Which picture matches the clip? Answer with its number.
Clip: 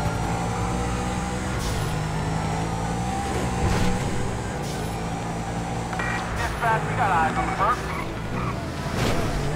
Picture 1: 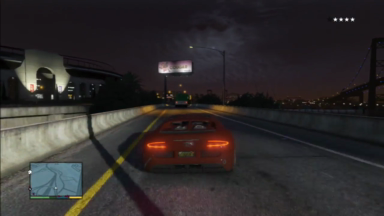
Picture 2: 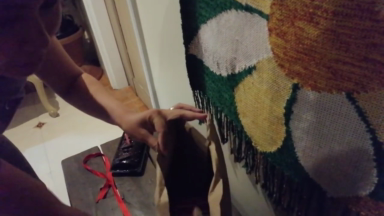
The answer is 1